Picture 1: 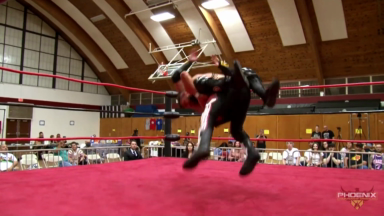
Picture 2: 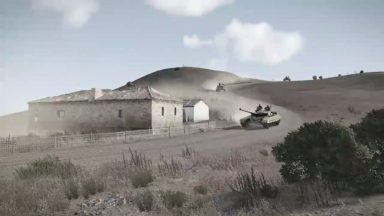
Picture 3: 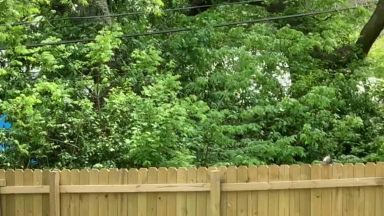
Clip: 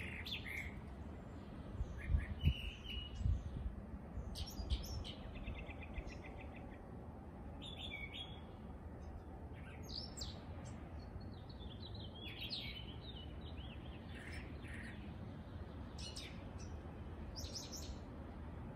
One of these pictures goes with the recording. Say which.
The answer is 3